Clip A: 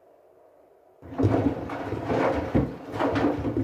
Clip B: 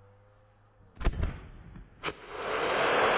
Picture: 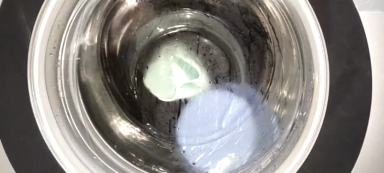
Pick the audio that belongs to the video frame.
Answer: A